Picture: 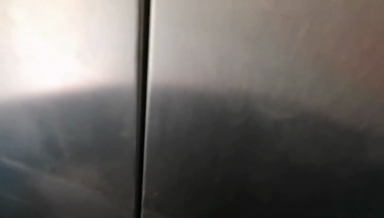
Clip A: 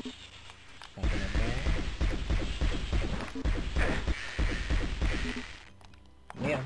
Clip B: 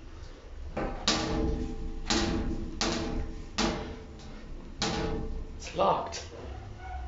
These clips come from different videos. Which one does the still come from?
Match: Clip B